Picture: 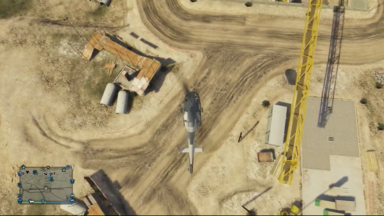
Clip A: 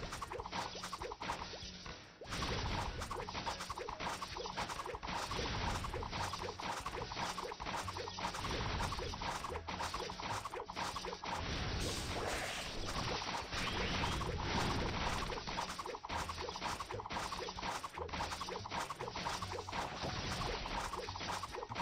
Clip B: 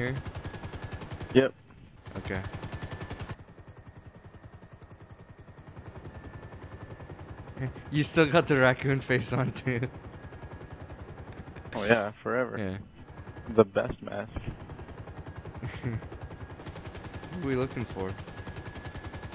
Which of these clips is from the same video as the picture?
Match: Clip B